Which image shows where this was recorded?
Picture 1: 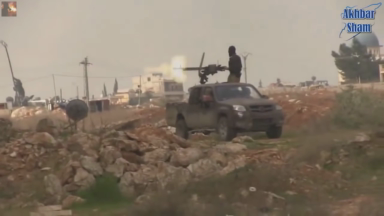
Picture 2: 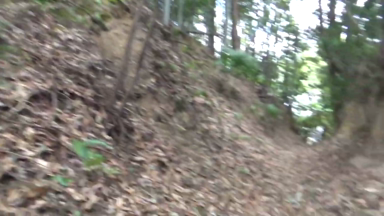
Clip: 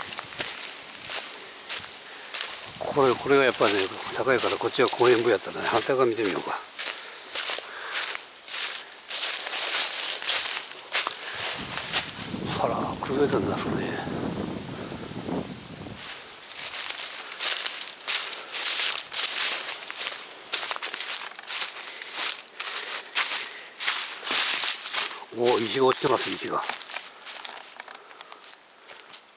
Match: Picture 2